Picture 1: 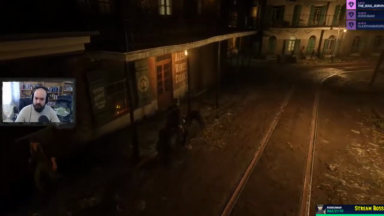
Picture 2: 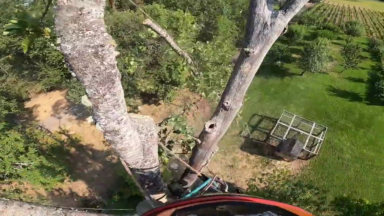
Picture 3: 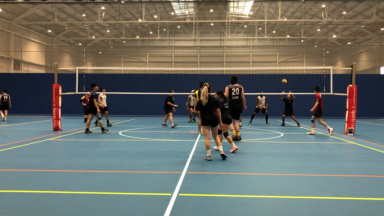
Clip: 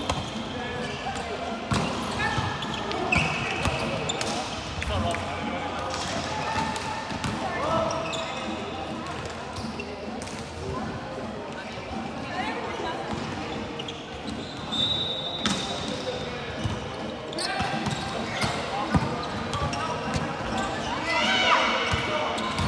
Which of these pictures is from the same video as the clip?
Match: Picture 3